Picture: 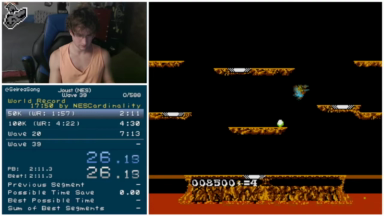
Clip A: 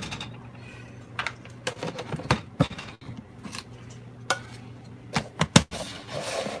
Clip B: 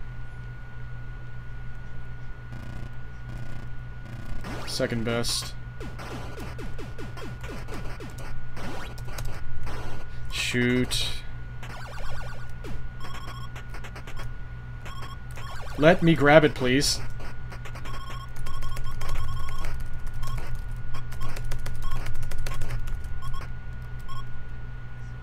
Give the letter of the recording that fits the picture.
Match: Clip B